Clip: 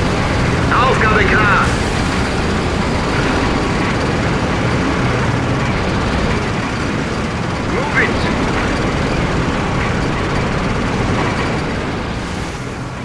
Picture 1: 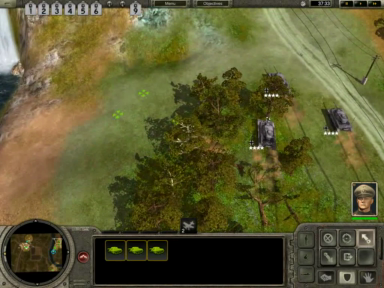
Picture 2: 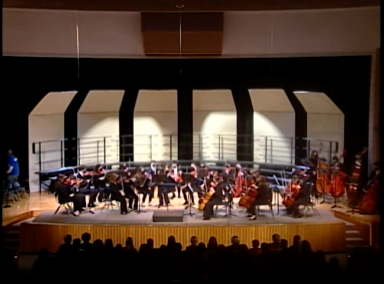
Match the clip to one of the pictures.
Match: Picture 1